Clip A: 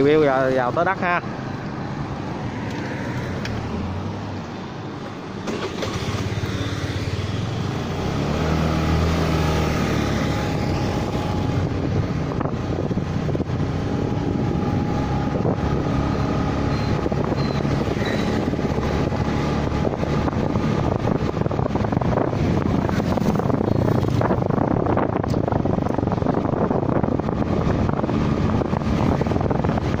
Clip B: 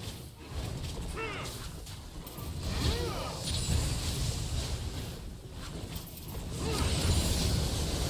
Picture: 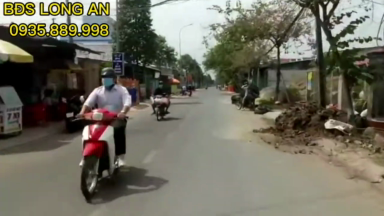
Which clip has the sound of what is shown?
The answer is A